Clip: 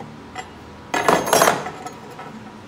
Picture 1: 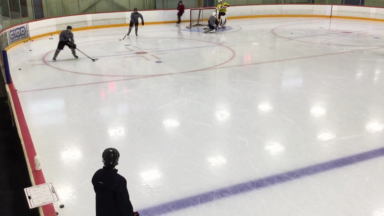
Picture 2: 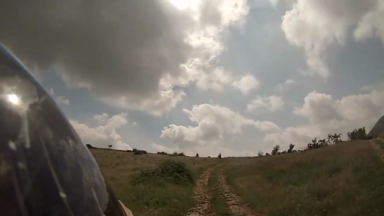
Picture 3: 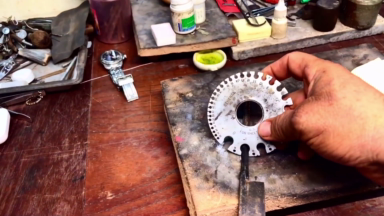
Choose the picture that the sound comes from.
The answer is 3